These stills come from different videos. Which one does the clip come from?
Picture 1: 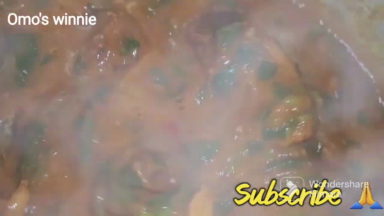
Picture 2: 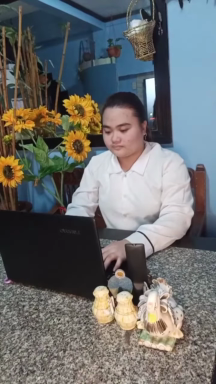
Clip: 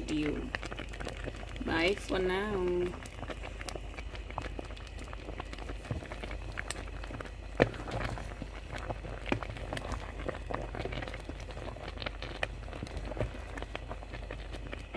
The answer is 1